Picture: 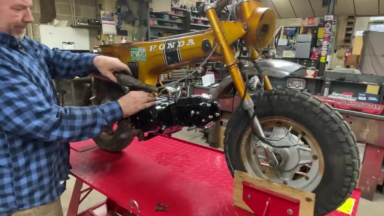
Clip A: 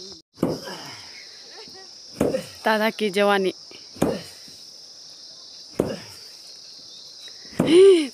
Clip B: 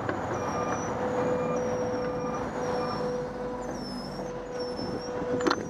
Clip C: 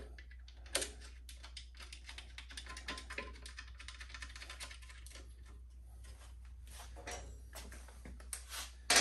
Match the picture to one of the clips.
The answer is C